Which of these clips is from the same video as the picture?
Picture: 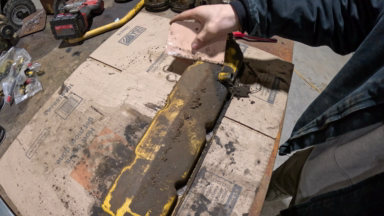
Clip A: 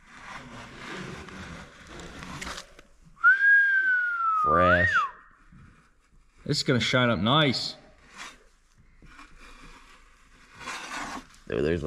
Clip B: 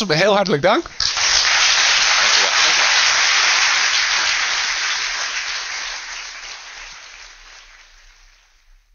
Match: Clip A